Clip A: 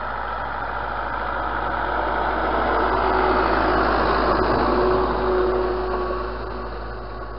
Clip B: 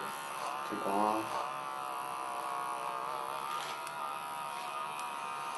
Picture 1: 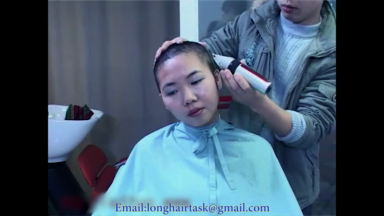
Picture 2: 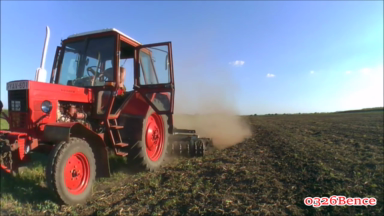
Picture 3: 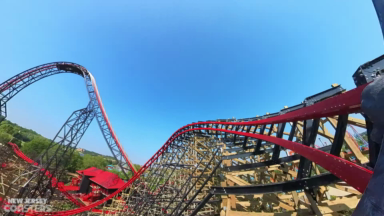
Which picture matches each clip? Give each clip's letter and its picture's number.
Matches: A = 2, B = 1